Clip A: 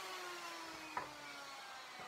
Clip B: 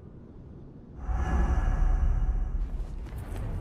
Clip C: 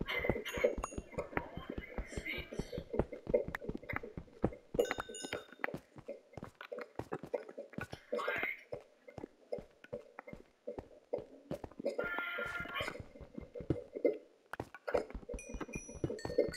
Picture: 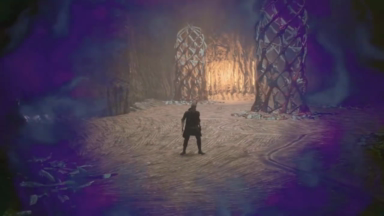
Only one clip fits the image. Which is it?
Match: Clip B